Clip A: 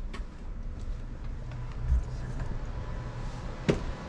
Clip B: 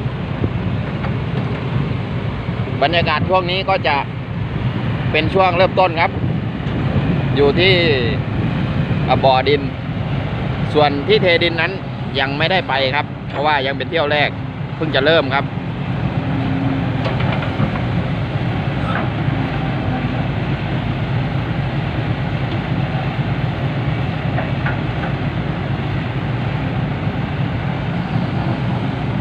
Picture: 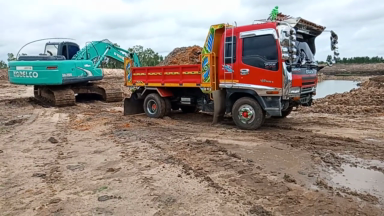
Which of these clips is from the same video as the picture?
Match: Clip B